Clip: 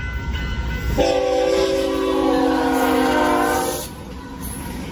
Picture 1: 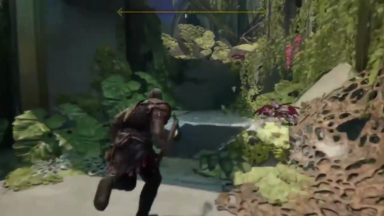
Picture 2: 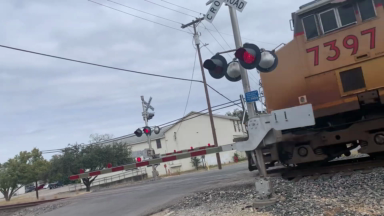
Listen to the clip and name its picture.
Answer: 2